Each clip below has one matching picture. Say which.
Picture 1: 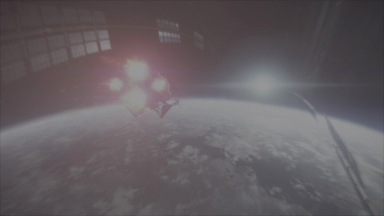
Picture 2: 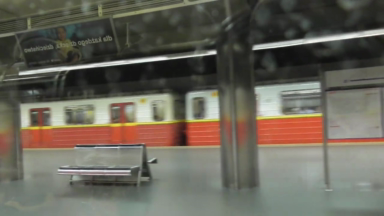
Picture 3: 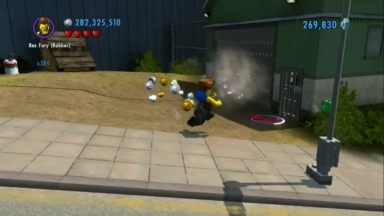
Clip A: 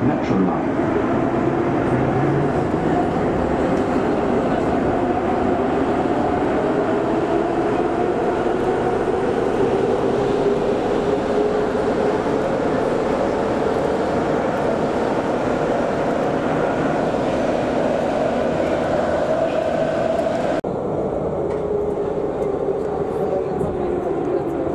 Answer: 2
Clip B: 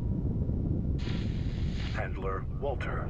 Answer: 1